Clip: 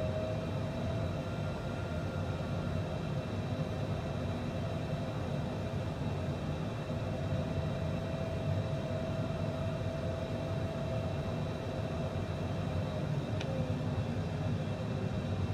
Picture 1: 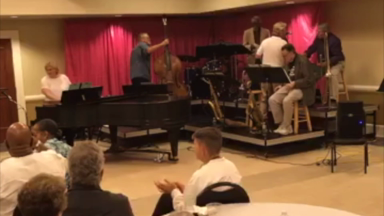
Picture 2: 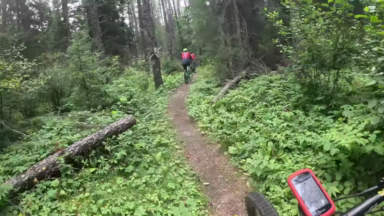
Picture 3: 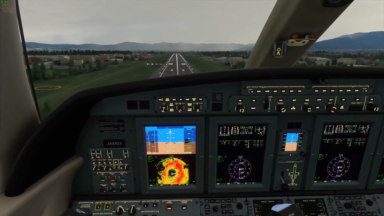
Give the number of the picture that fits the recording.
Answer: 3